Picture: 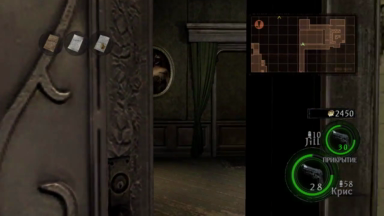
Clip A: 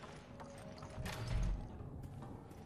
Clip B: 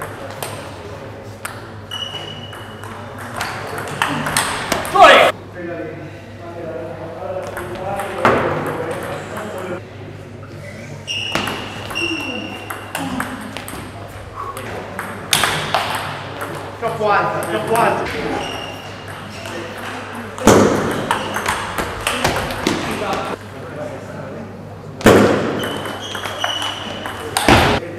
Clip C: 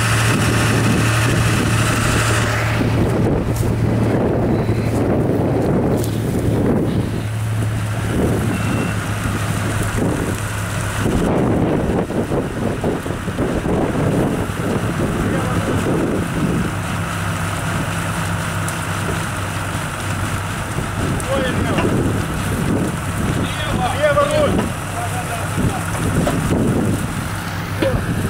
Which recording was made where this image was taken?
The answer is A